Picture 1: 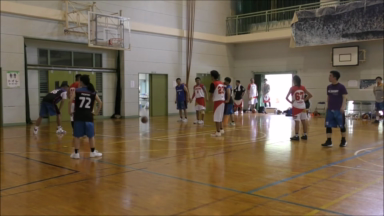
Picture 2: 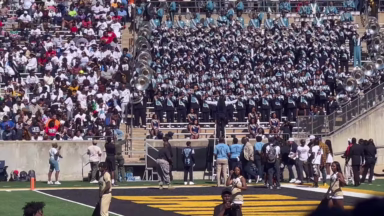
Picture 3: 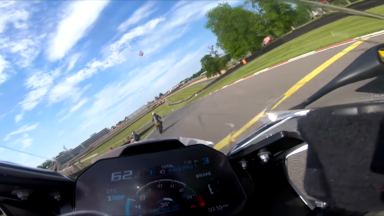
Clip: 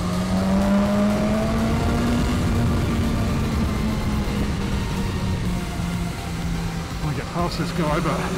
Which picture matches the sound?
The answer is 3